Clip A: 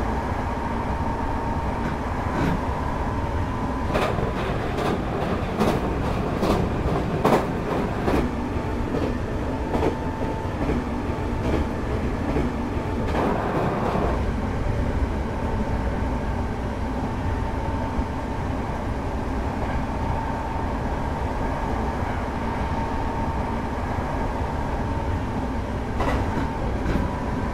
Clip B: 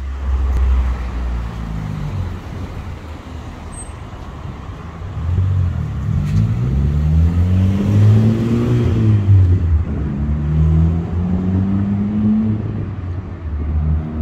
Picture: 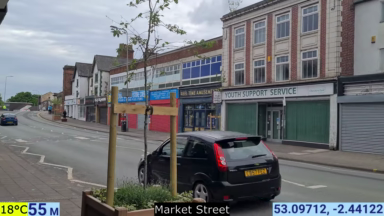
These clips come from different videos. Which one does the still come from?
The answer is B